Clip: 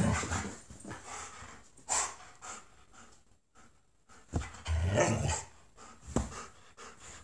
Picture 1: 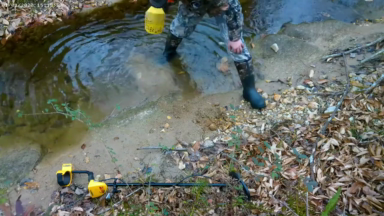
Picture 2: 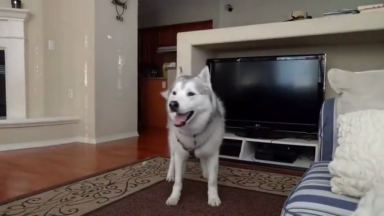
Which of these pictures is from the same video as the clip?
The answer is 2